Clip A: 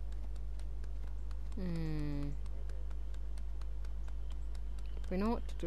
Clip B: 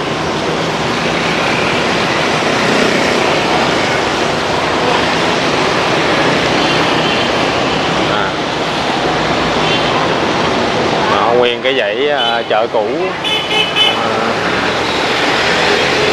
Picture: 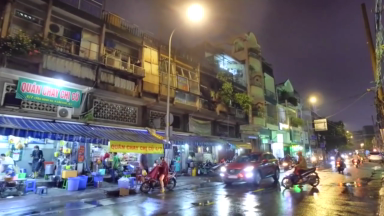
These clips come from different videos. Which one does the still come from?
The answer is B